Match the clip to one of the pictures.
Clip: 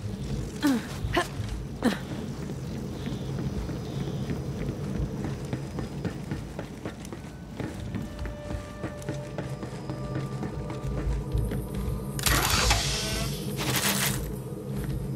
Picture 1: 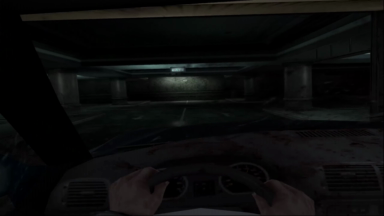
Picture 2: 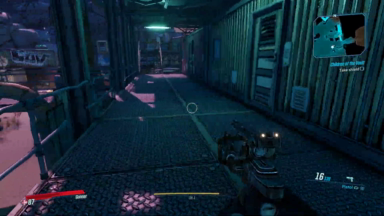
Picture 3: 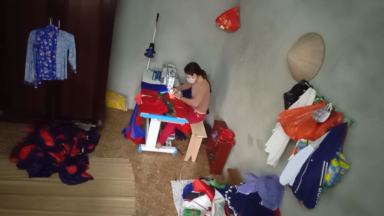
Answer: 2